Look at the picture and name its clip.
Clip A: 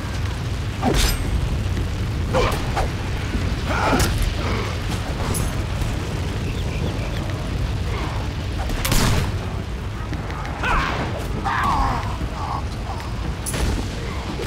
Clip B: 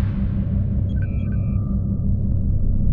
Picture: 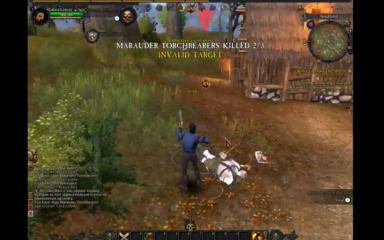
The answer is A